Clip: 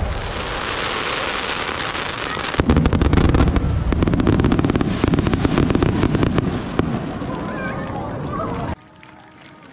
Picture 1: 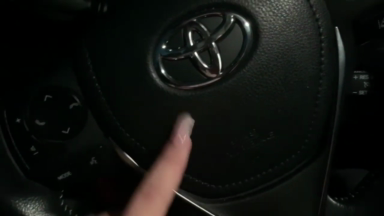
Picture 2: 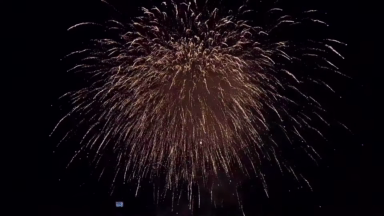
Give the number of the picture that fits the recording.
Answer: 2